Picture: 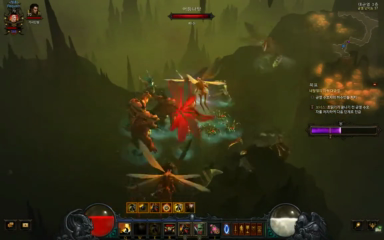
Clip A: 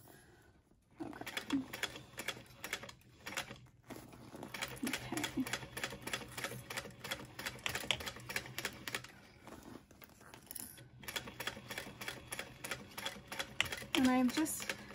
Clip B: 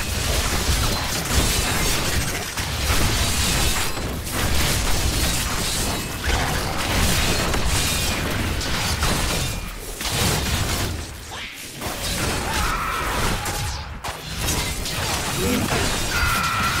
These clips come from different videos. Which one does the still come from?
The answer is B